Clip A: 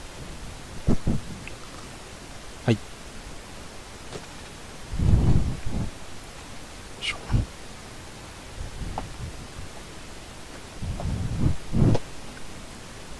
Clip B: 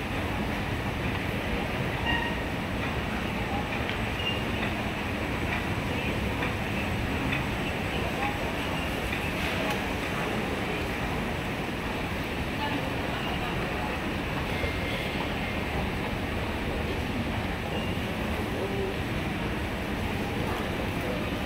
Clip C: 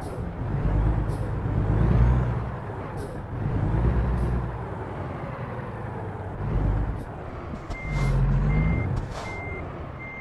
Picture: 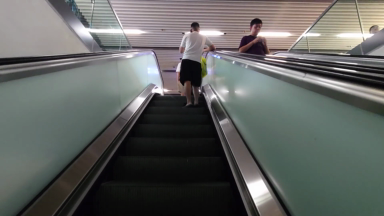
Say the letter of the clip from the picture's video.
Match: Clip B